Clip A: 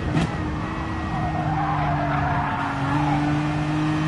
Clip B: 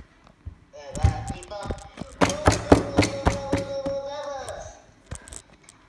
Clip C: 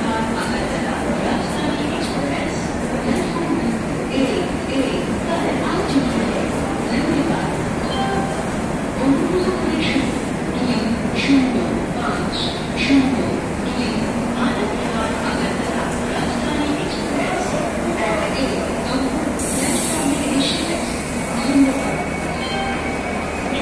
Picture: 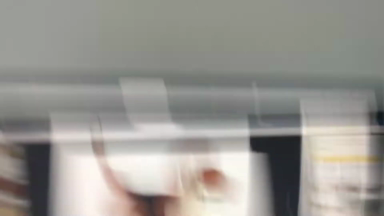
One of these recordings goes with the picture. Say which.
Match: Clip B